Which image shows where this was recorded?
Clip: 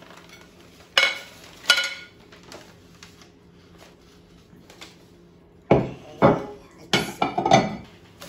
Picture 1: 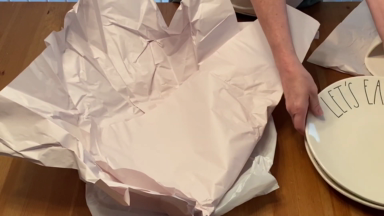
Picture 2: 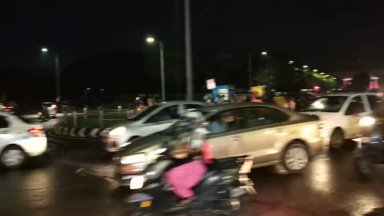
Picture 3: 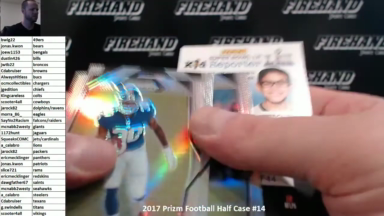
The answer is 1